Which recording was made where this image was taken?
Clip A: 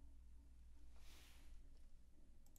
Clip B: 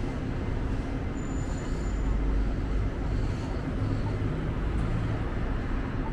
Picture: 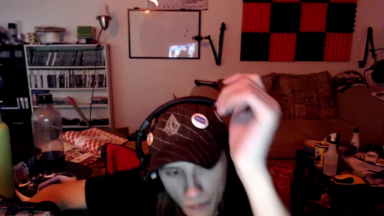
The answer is A